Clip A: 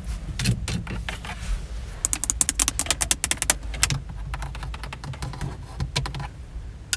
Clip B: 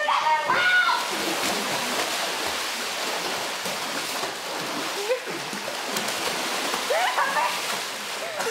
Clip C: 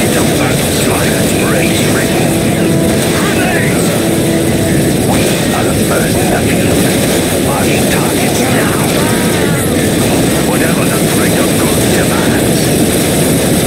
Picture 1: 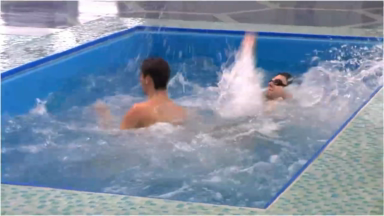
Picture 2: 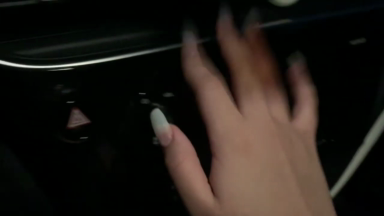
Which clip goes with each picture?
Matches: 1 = B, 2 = A